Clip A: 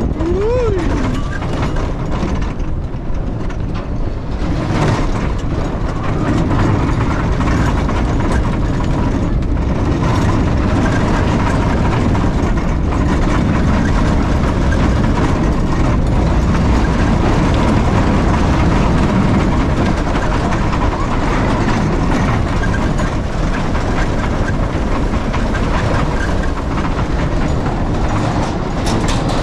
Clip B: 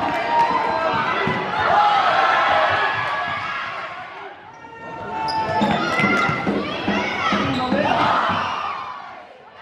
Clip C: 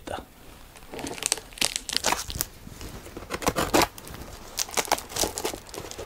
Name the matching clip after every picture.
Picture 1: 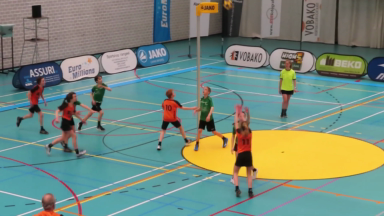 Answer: B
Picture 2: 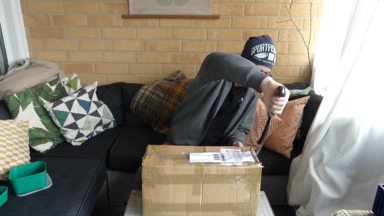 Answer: C